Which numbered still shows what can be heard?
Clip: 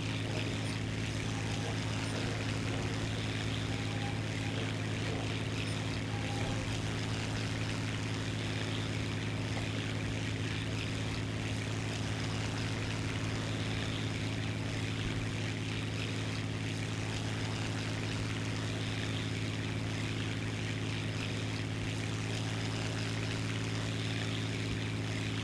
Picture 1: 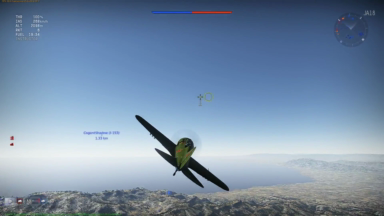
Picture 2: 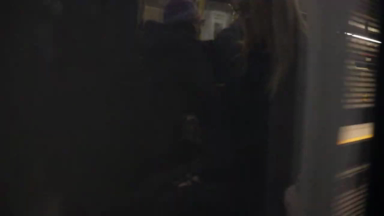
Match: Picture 1